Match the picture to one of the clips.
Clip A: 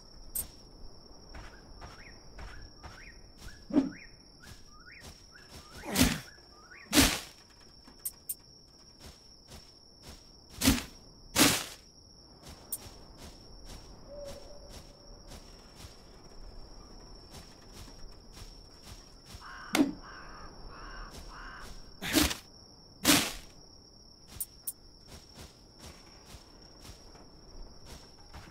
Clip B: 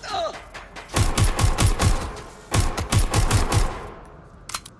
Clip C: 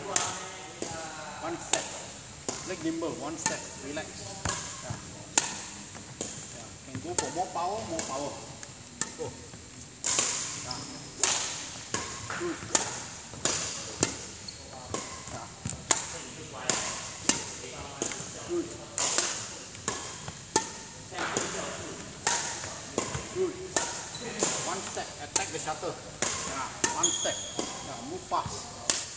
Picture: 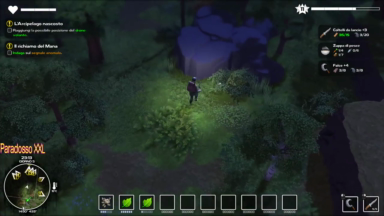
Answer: A